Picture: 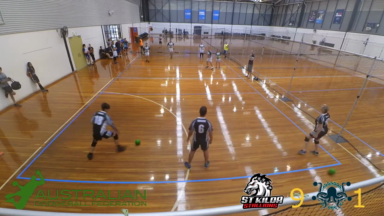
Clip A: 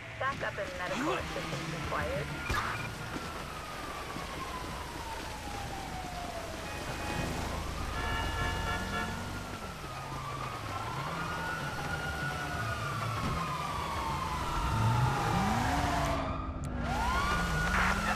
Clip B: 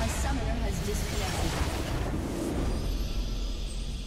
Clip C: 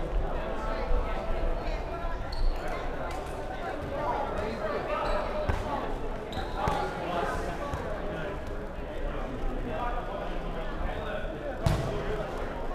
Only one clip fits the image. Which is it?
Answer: C